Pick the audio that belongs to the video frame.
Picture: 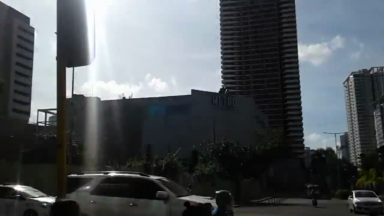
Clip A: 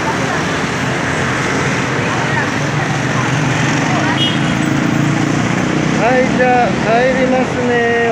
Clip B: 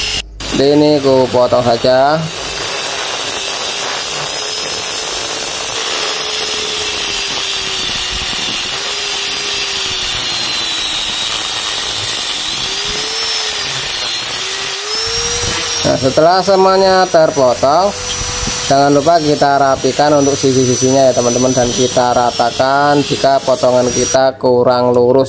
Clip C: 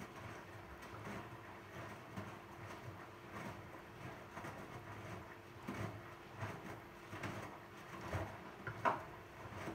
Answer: A